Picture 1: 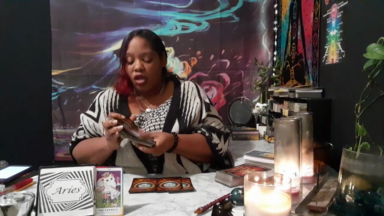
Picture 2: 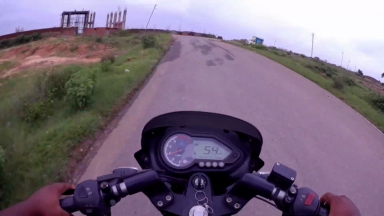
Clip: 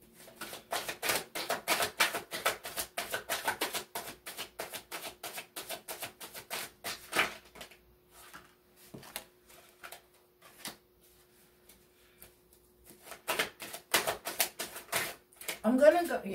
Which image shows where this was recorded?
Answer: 1